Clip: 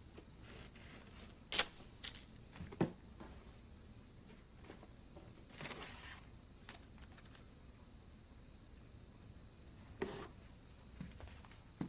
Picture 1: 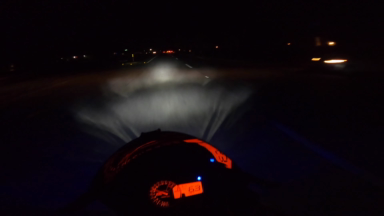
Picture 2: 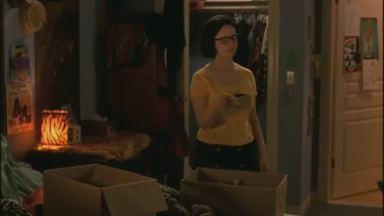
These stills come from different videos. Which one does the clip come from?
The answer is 2